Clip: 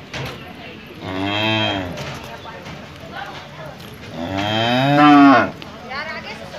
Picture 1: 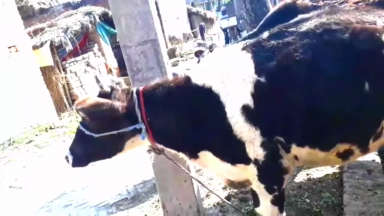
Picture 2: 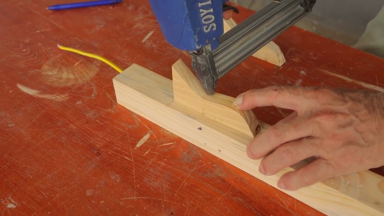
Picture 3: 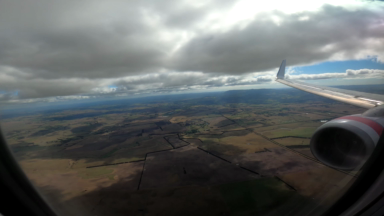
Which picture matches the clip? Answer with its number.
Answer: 1